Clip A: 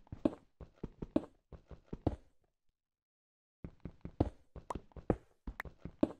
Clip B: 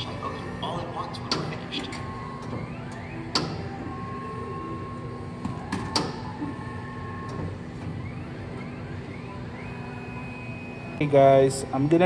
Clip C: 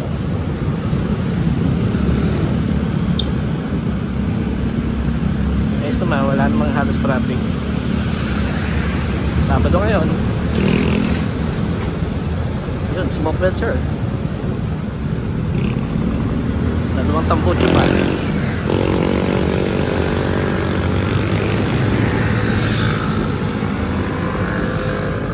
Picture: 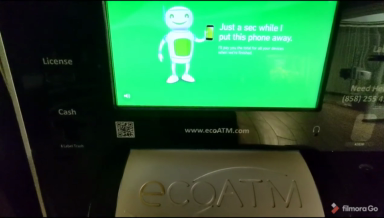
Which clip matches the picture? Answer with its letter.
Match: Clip B